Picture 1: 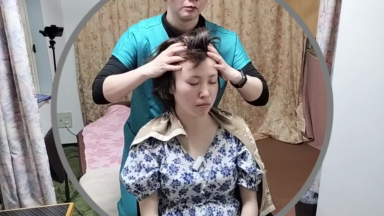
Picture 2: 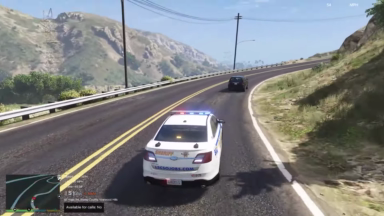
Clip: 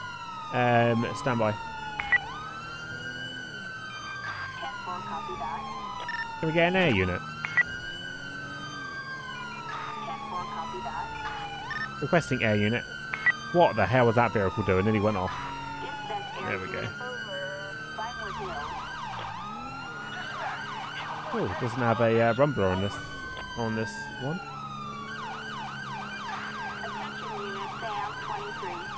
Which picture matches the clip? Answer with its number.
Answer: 2